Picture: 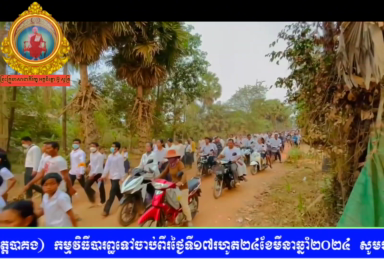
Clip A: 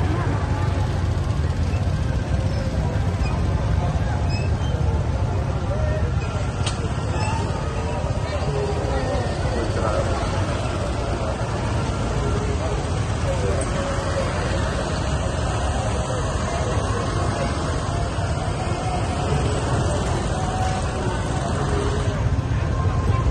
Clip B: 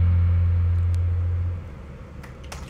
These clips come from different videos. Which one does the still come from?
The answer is A